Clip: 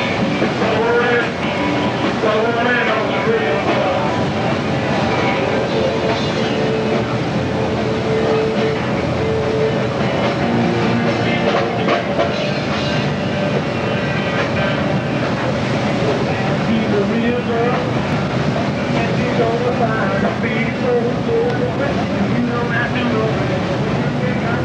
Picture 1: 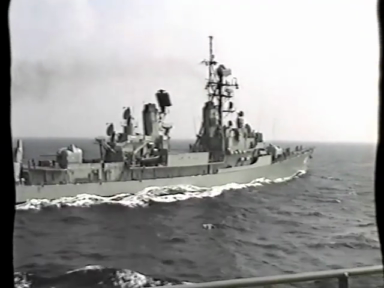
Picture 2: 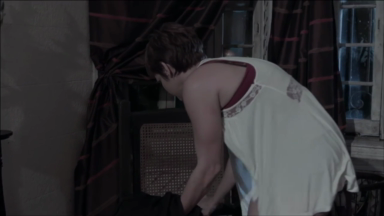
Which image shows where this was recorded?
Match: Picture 1